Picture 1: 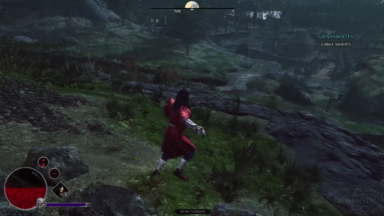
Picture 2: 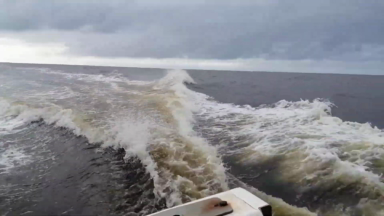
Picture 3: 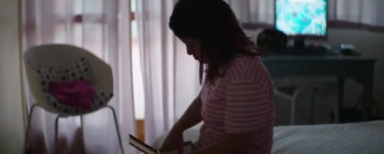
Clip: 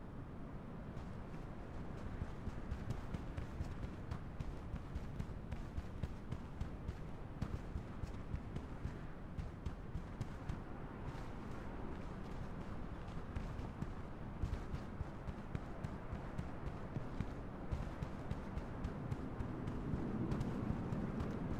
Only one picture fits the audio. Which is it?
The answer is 1